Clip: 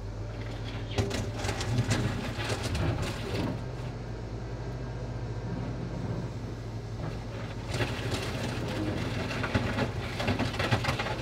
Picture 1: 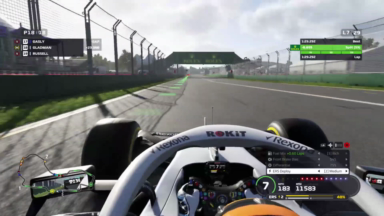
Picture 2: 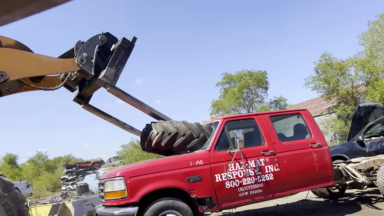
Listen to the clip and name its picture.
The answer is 2